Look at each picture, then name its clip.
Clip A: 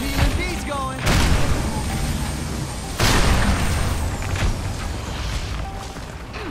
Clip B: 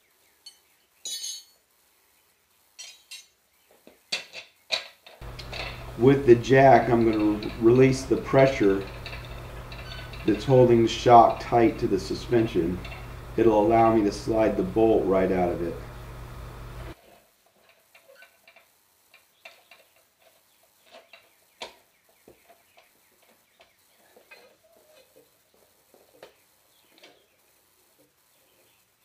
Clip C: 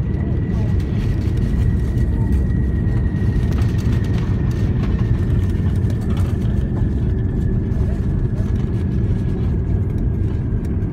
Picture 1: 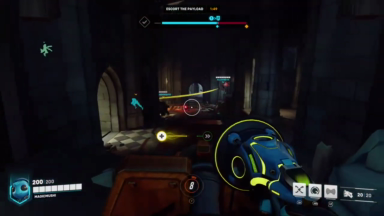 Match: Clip A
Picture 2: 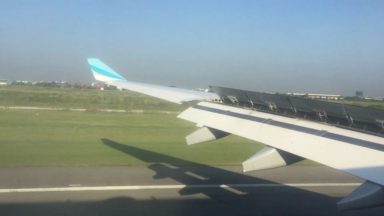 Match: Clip C